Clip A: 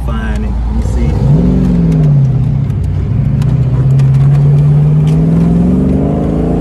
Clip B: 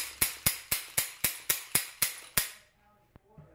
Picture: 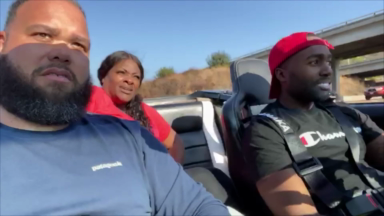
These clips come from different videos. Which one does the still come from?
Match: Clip A